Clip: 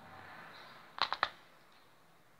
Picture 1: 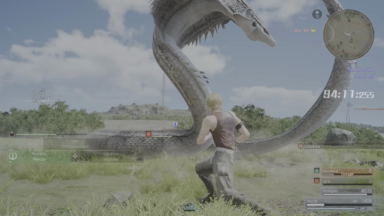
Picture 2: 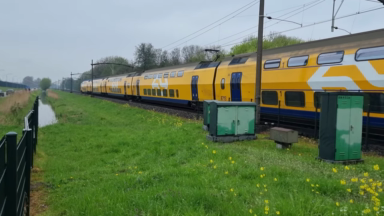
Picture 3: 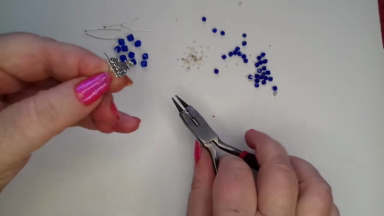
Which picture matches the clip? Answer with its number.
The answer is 3